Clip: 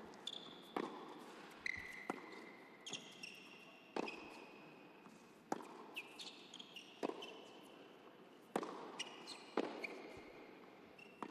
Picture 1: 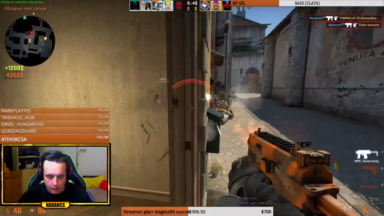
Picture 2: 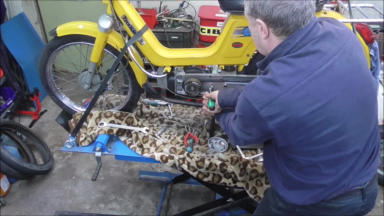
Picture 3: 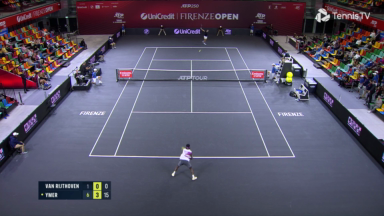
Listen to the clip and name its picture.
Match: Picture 3